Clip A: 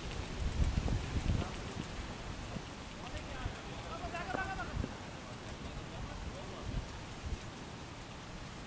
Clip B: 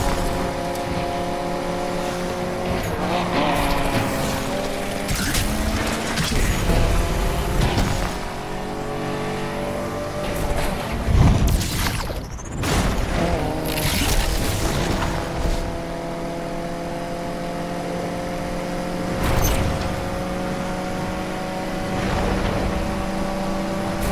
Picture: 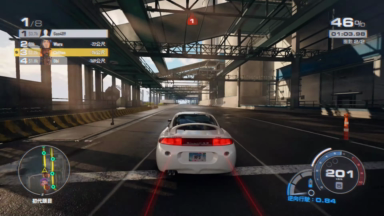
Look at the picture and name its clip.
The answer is B